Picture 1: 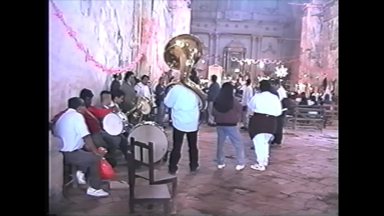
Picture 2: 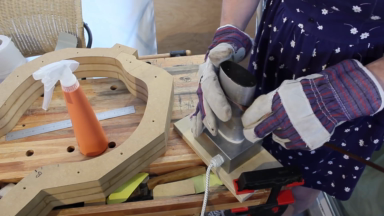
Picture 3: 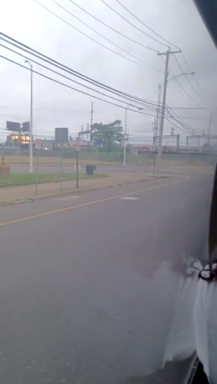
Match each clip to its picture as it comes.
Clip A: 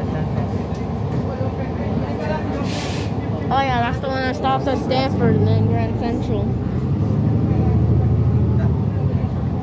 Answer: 3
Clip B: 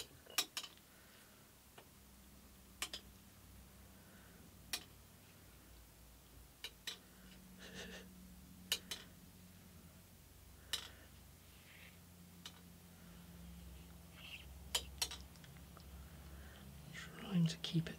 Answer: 2